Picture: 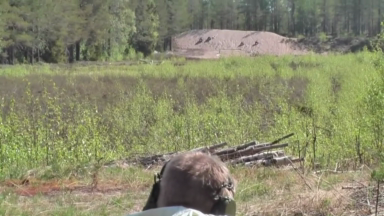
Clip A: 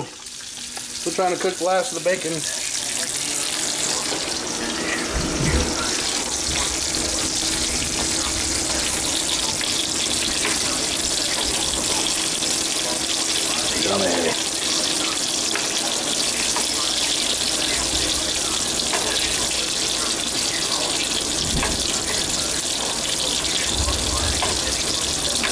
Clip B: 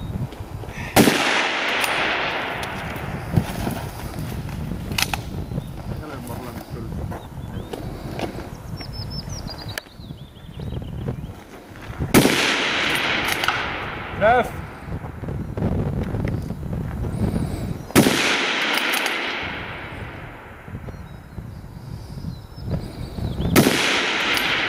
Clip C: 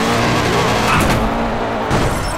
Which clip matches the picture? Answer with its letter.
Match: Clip B